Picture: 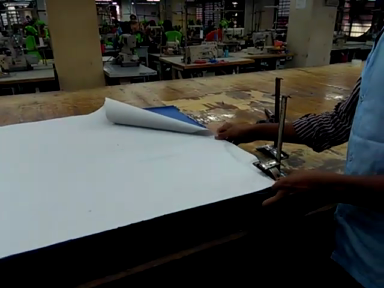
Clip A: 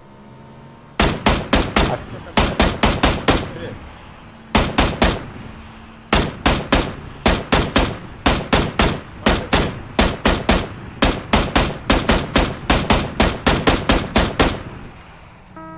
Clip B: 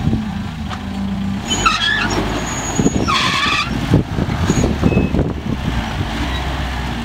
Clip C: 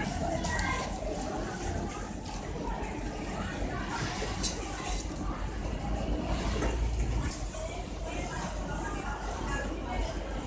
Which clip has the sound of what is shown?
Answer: C